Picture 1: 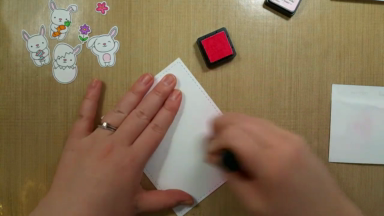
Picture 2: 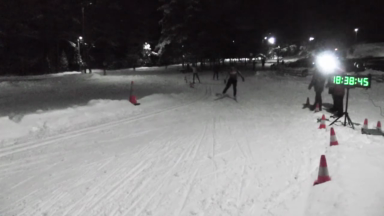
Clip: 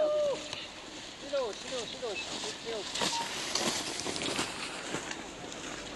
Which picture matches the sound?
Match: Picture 2